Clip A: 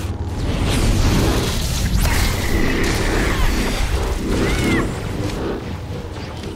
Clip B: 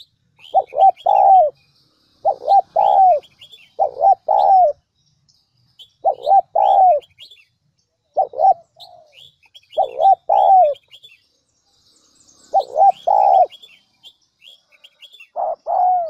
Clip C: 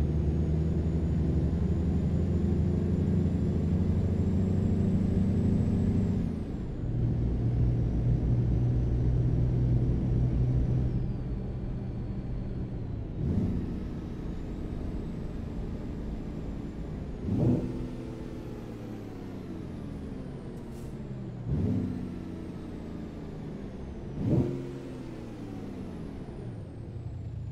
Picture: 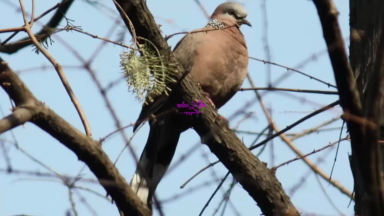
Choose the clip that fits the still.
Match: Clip B